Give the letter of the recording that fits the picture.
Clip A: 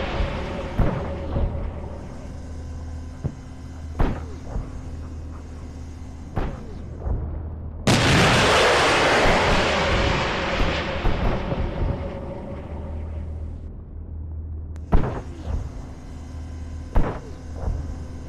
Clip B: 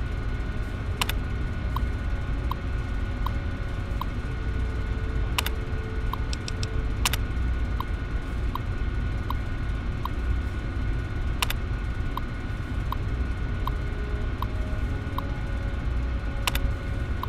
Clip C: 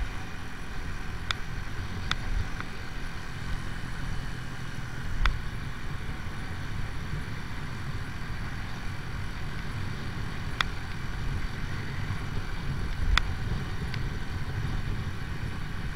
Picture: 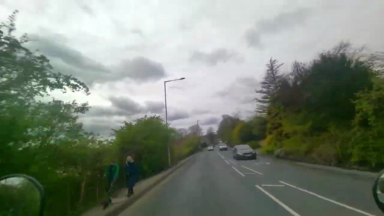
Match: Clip C